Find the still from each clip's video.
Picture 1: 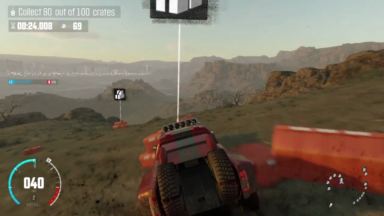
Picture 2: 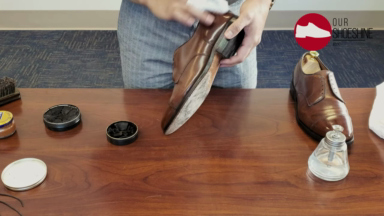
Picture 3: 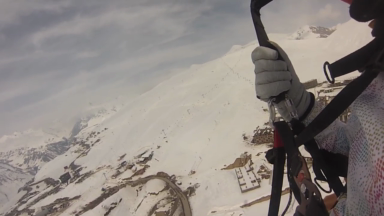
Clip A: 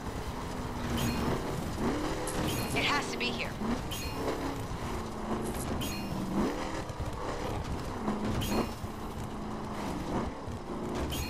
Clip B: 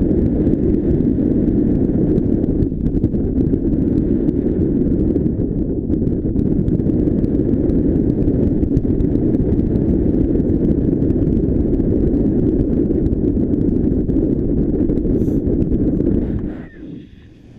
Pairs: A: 1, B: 3